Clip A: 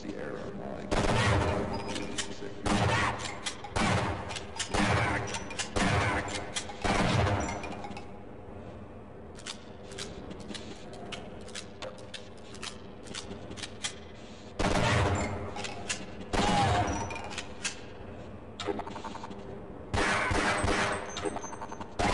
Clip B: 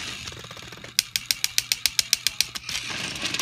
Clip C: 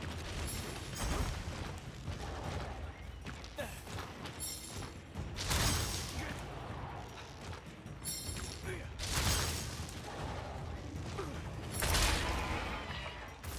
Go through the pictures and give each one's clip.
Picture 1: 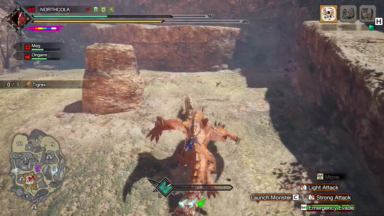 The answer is C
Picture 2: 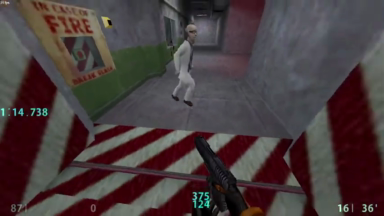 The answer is A